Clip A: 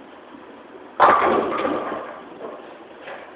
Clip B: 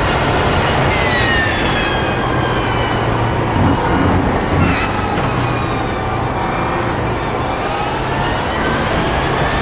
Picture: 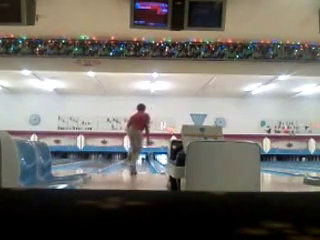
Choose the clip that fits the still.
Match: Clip A